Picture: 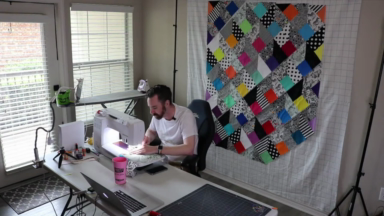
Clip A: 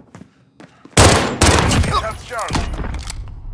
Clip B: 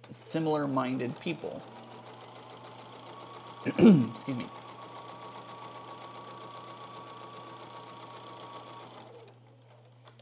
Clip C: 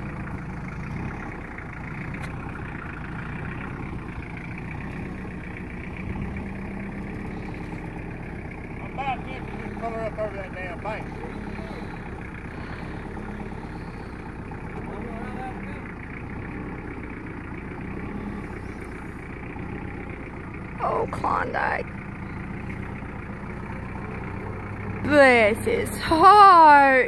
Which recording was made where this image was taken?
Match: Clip B